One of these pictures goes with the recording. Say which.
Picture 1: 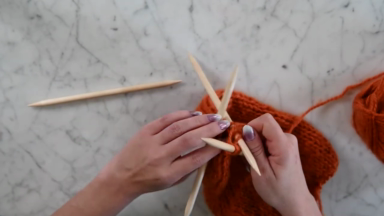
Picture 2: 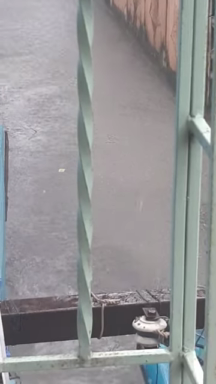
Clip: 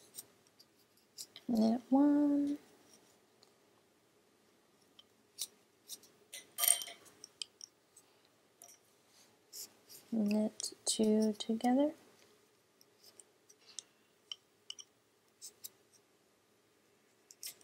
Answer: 1